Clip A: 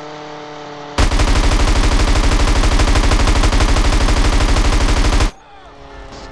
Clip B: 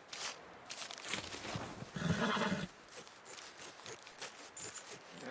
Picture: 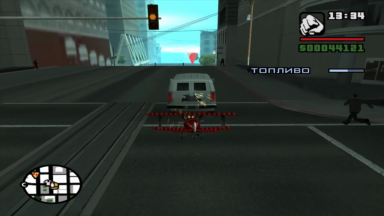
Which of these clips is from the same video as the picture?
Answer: A